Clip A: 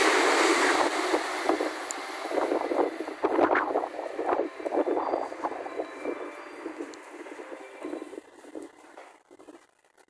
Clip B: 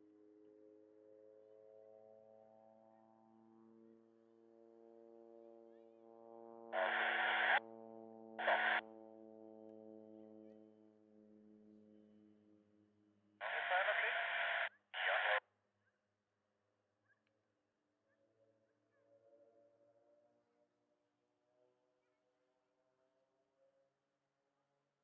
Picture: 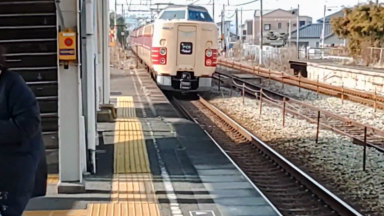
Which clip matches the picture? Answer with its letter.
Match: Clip A